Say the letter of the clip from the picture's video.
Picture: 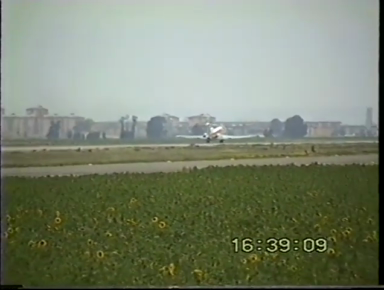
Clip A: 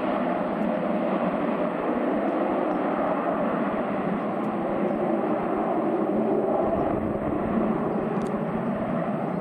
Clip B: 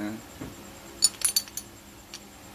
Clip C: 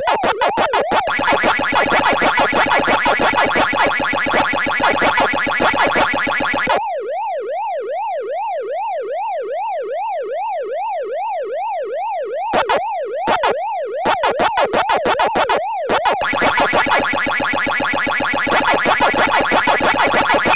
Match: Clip A